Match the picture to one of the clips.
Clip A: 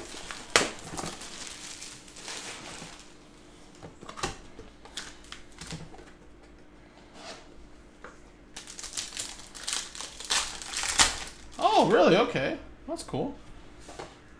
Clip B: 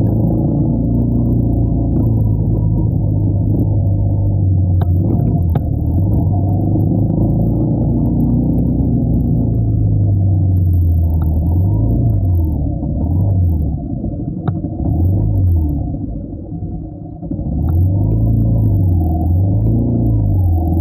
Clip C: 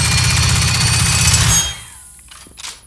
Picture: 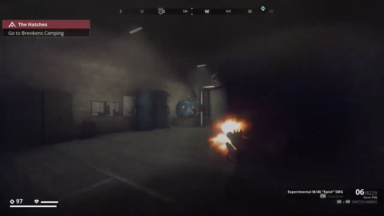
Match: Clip C